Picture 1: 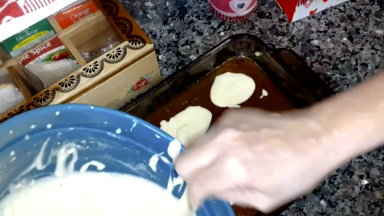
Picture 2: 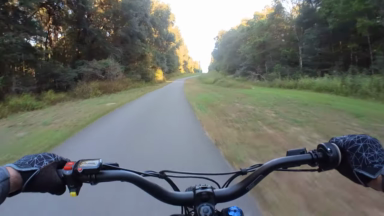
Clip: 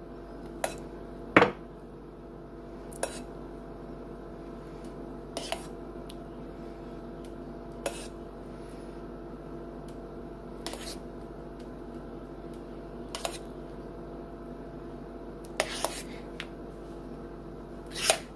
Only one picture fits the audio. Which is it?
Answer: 1